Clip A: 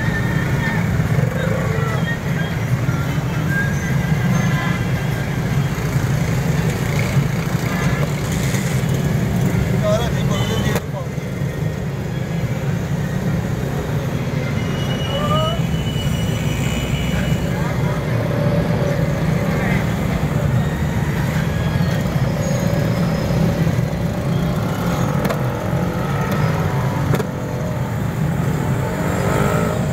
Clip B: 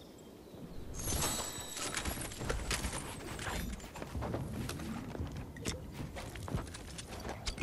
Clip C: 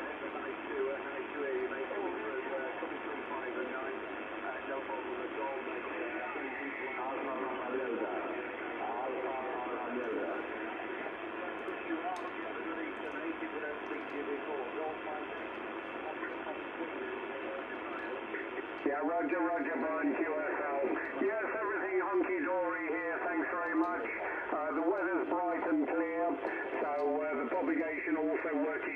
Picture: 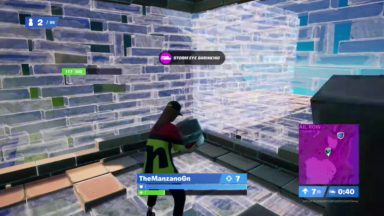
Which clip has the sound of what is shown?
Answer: B